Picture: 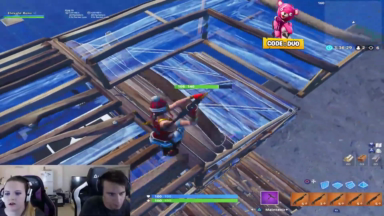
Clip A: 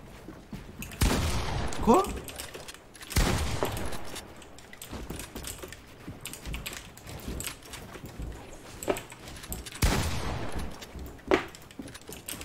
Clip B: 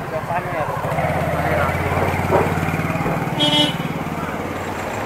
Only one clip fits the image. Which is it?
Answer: A